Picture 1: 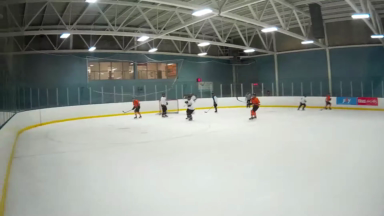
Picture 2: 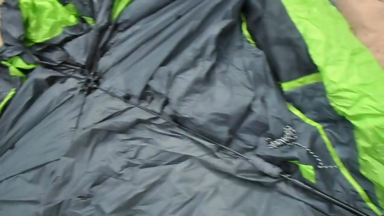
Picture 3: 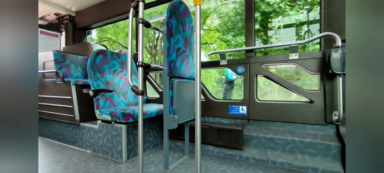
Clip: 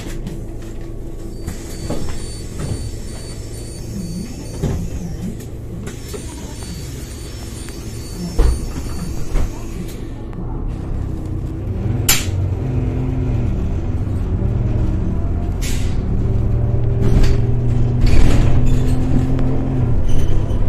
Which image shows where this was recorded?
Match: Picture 3